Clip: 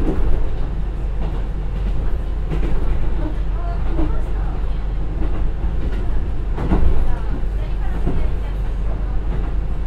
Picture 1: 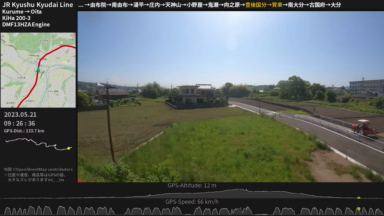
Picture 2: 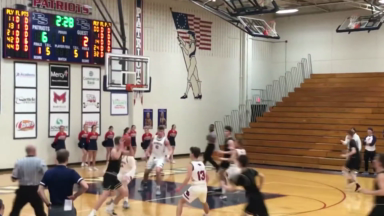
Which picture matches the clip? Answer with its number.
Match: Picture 1